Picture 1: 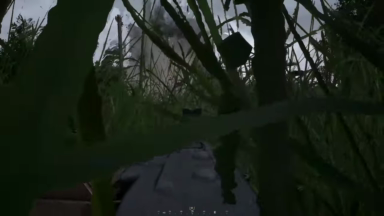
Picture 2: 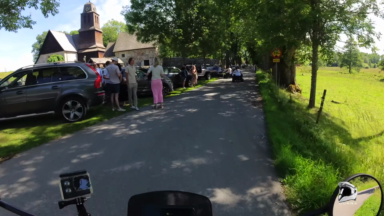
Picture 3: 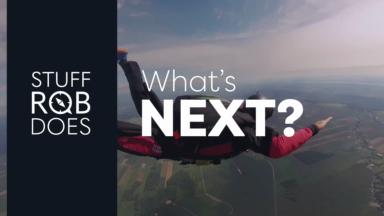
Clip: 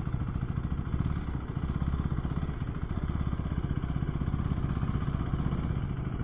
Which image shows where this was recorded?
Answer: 2